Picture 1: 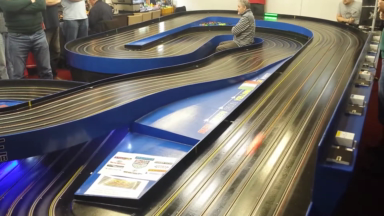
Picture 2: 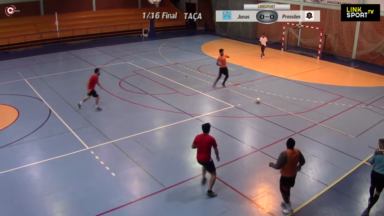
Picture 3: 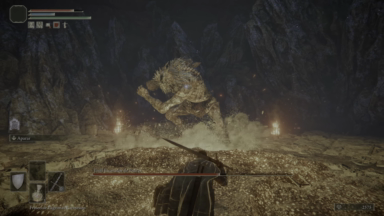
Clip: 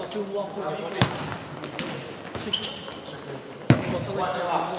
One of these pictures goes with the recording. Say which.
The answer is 2